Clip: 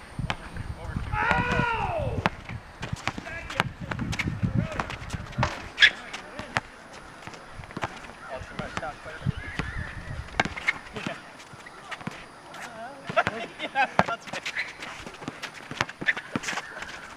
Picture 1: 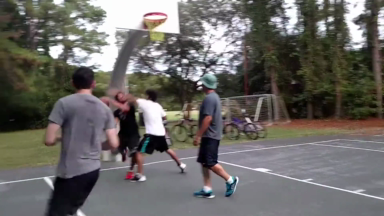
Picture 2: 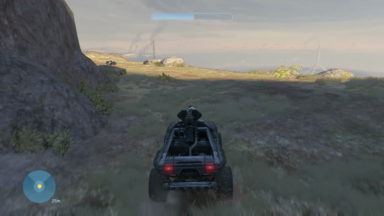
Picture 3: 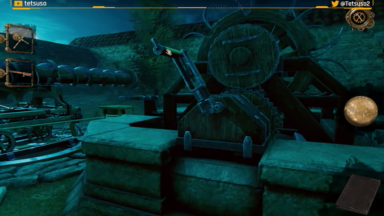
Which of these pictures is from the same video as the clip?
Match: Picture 1